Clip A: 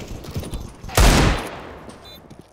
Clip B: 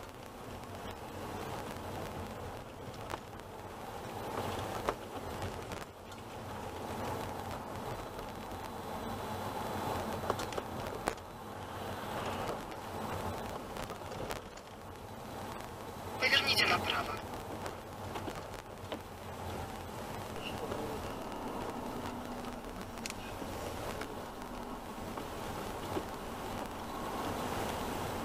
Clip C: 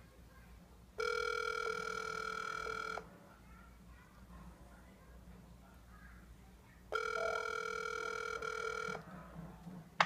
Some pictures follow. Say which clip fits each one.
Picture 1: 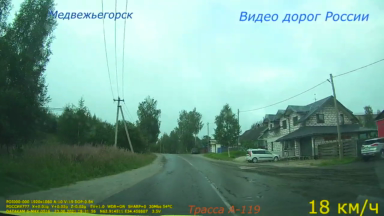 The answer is B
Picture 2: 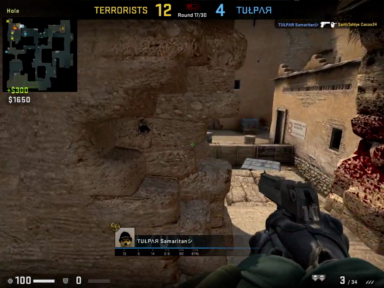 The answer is A